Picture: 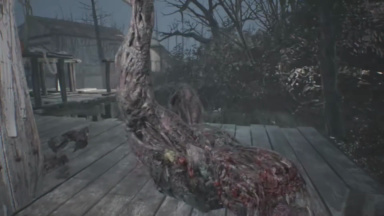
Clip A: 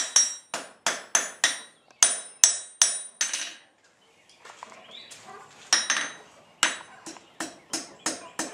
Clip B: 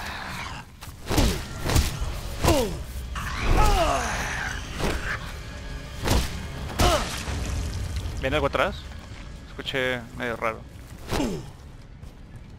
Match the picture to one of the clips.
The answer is B